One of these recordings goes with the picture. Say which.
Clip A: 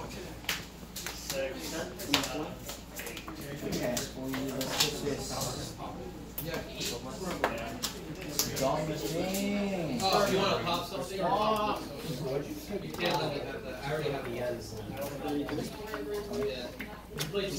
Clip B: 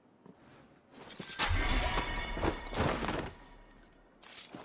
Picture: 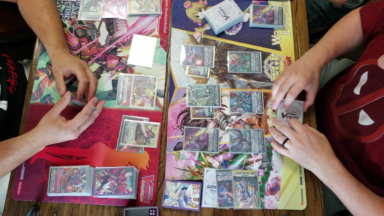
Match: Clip A